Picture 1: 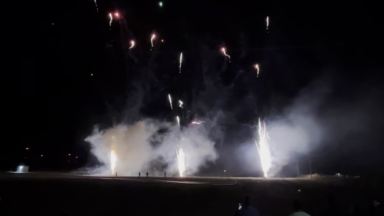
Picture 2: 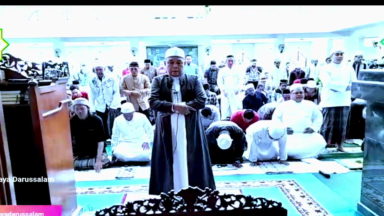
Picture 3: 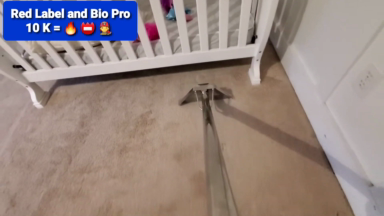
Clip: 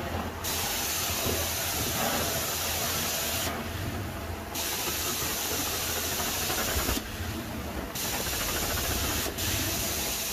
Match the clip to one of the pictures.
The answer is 3